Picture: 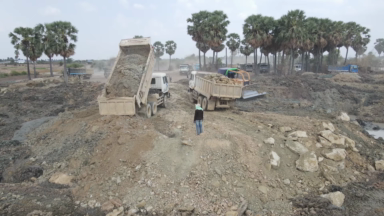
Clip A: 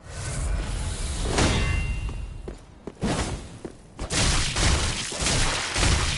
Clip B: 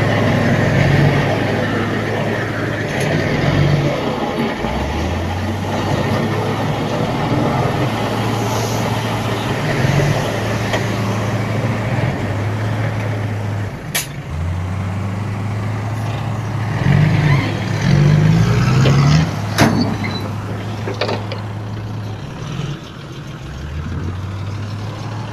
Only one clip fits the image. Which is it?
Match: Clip B